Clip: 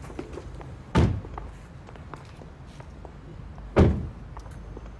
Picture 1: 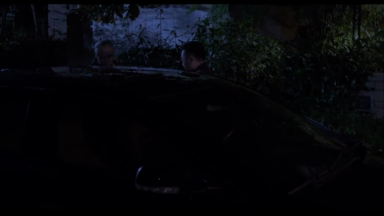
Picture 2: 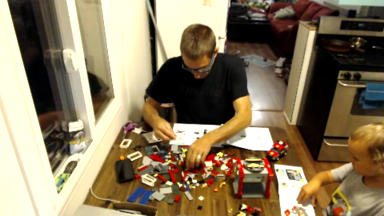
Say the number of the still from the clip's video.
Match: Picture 1